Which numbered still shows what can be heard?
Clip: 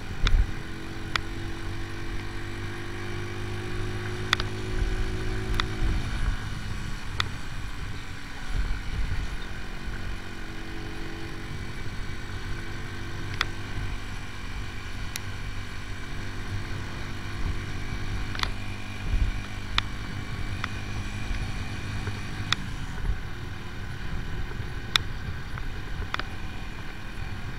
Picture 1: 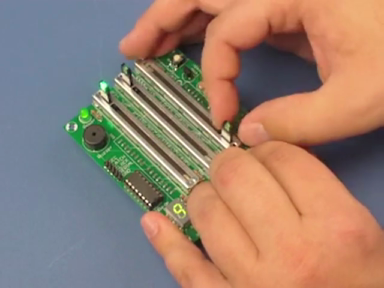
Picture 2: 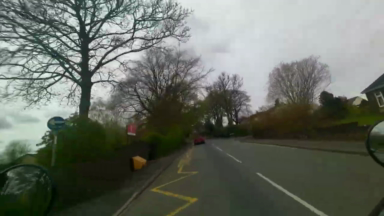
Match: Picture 2